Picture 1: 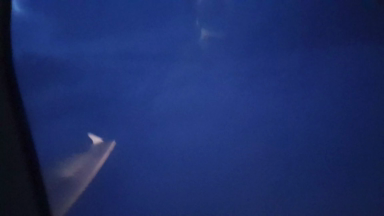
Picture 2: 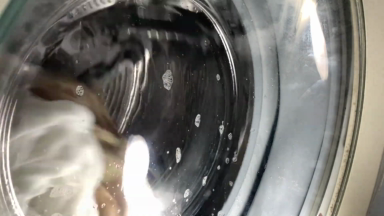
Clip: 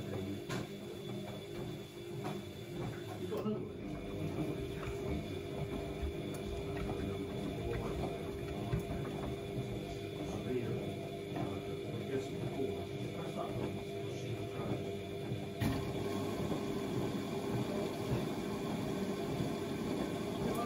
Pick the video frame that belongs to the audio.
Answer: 2